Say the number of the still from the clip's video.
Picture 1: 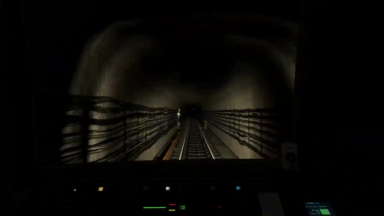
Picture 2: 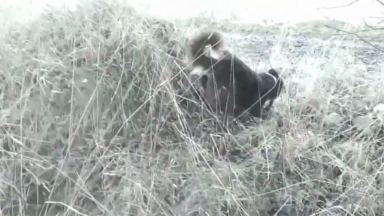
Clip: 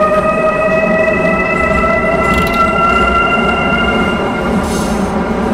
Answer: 1